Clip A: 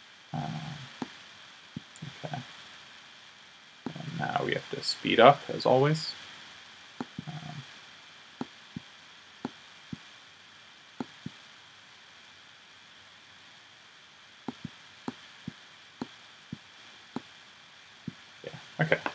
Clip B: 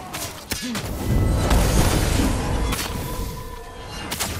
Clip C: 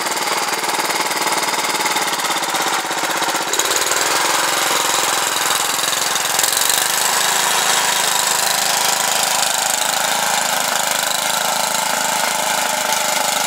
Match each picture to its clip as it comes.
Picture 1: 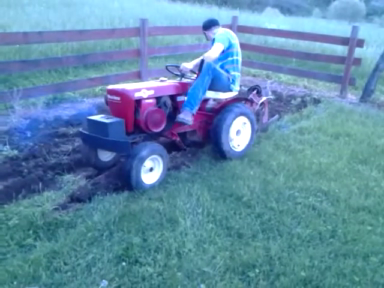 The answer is C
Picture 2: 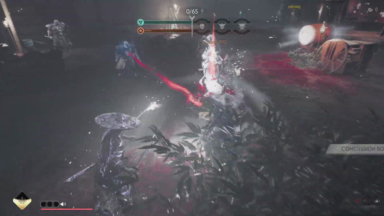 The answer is B